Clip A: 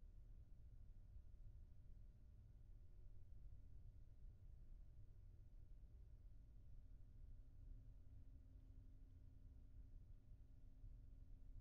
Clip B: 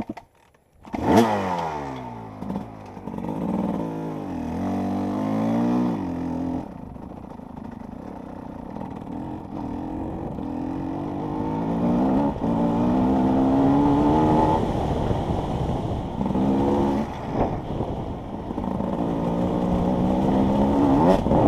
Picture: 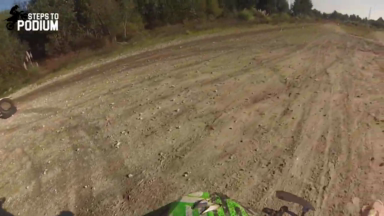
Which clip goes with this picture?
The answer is B